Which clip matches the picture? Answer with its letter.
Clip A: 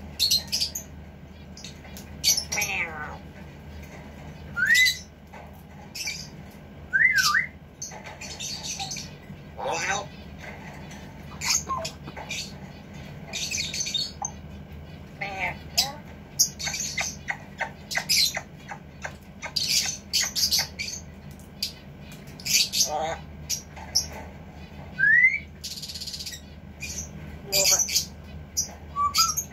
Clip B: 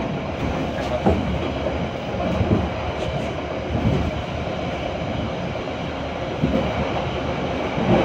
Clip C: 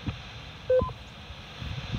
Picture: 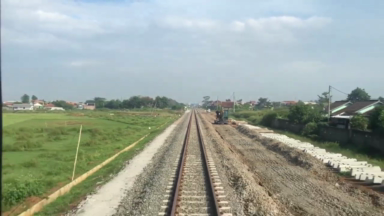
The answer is B